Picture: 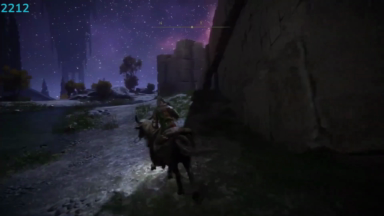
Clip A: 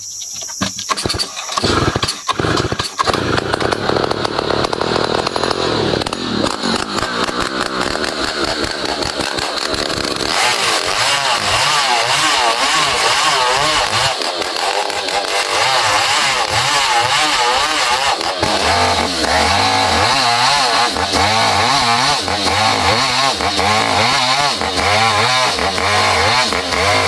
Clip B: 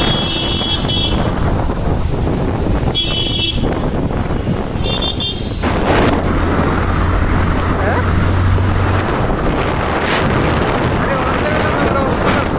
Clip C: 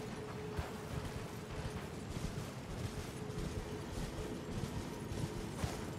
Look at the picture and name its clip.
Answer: C